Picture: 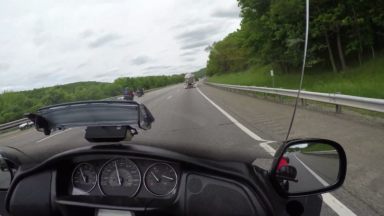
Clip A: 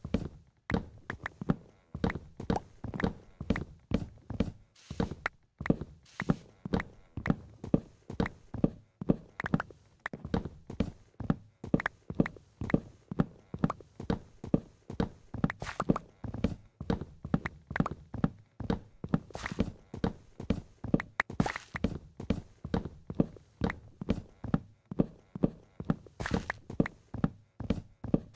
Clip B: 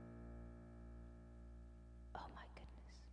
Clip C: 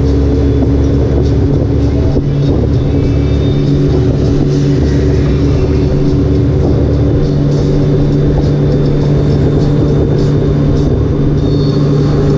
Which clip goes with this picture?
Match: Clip C